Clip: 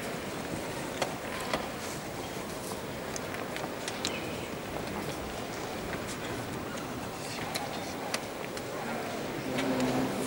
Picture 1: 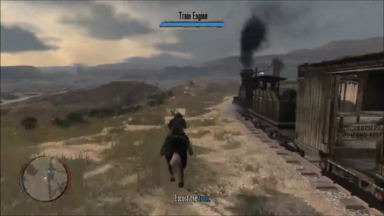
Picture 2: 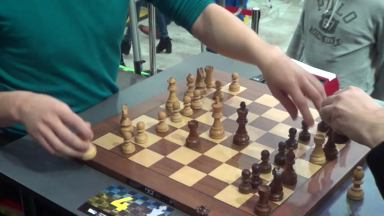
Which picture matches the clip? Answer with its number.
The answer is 2